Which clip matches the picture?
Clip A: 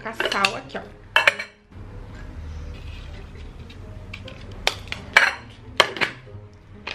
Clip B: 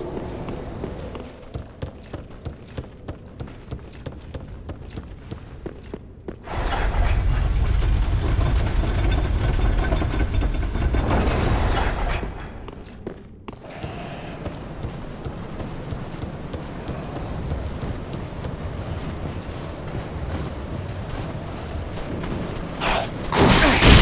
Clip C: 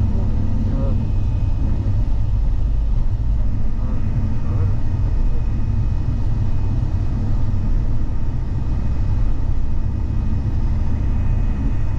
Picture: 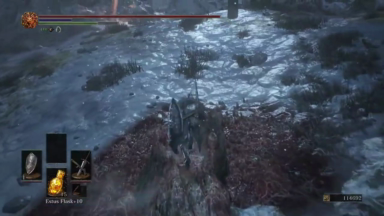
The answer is B